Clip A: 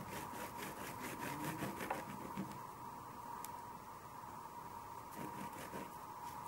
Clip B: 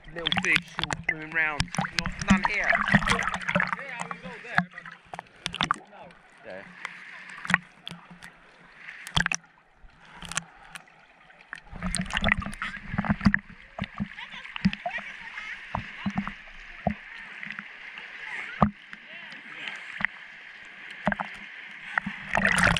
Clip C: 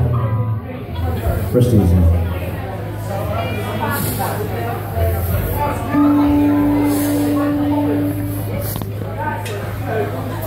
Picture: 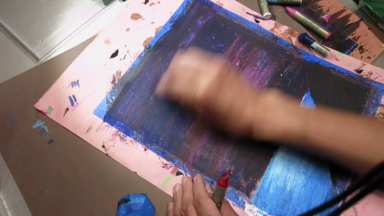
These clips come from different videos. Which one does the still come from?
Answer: A